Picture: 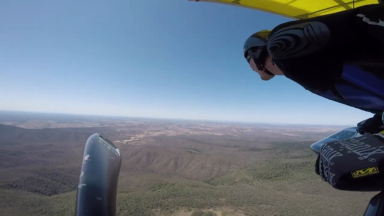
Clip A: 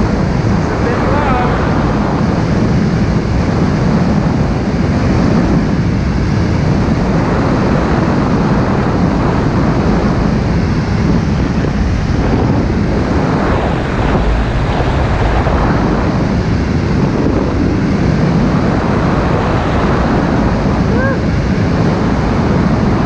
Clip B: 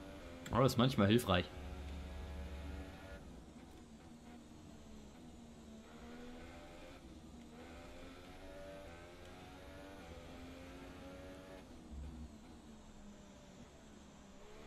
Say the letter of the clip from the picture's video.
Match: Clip A